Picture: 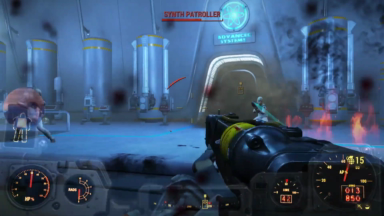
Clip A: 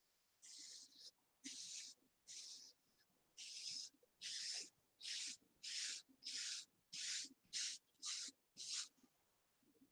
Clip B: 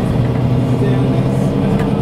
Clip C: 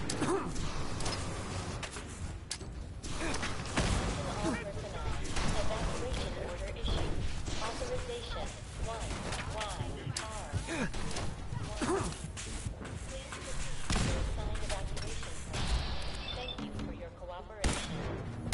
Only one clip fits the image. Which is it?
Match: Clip C